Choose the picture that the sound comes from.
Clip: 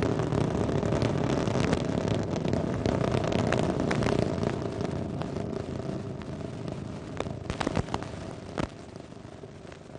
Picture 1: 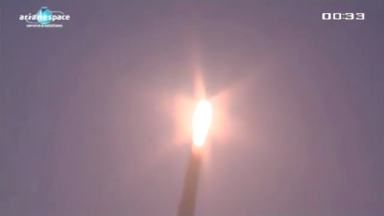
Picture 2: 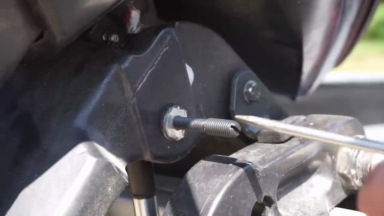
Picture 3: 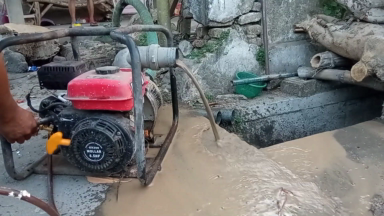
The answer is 1